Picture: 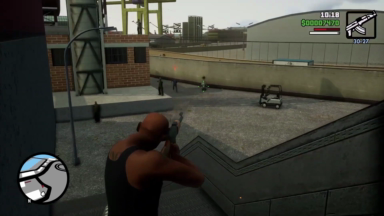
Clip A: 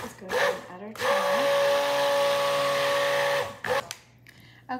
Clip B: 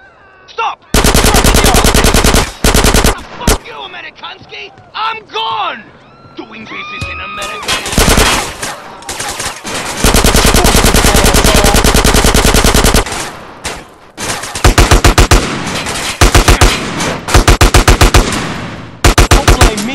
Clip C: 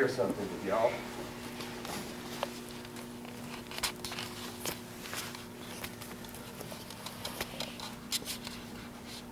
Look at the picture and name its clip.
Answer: B